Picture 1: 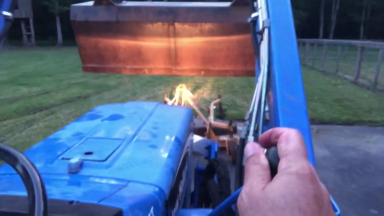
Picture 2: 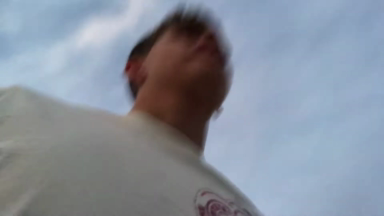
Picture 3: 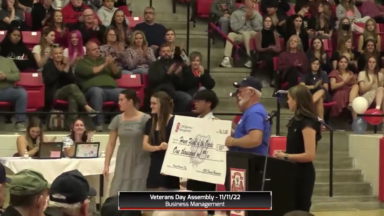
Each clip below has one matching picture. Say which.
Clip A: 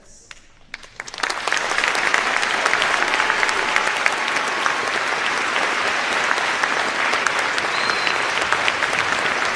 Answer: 3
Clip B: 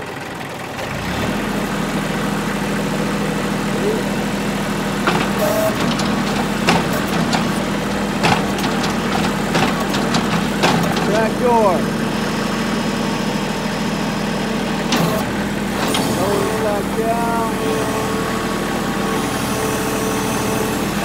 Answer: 1